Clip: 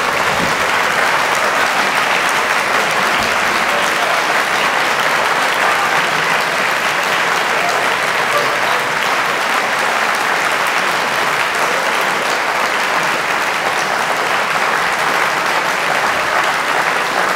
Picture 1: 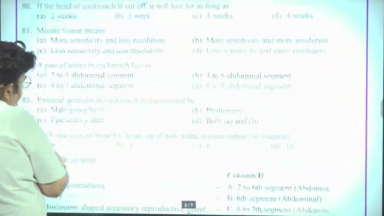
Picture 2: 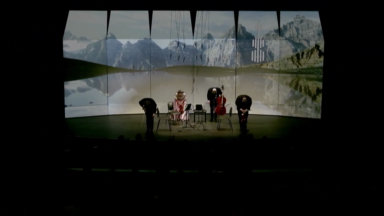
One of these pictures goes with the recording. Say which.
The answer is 2